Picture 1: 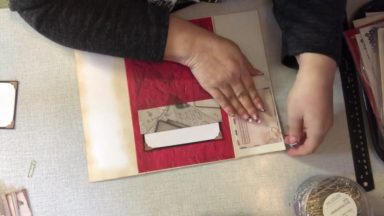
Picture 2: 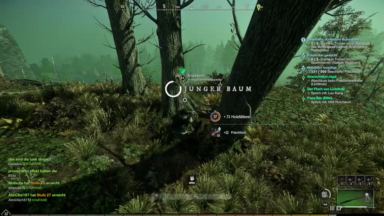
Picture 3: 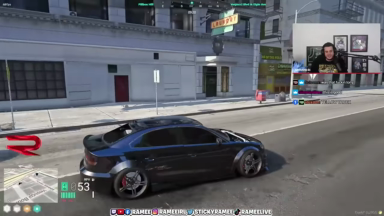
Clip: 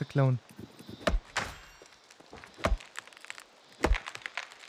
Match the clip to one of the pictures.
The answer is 2